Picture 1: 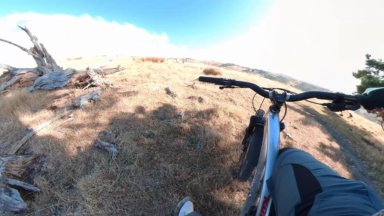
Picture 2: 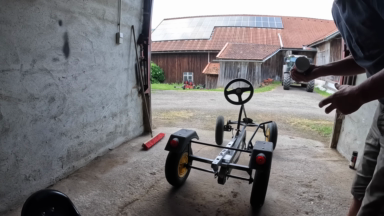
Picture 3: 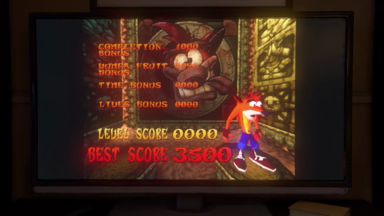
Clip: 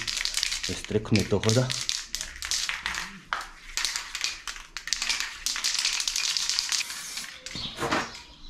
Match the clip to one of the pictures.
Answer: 2